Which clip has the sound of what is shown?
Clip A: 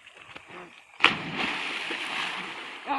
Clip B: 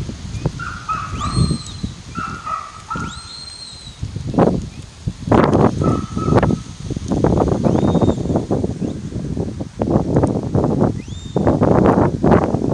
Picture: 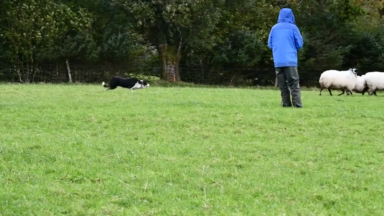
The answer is B